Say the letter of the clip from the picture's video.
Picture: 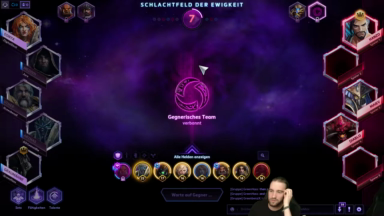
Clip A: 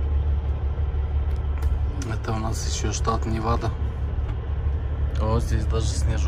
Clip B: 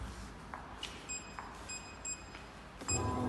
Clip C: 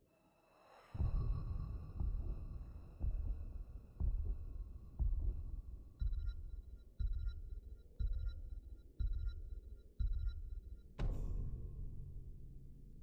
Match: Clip C